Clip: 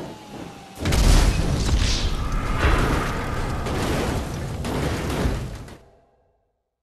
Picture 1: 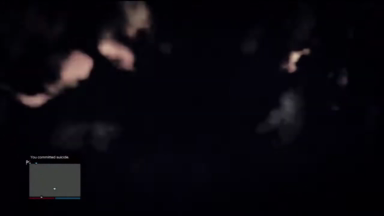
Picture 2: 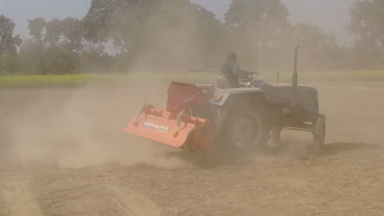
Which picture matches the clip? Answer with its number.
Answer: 1